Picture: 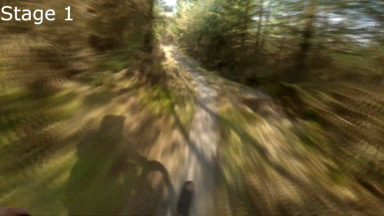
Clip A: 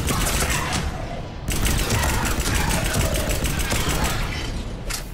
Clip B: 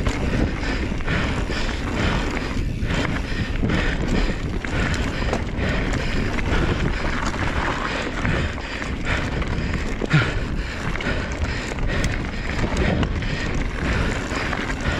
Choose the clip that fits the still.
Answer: B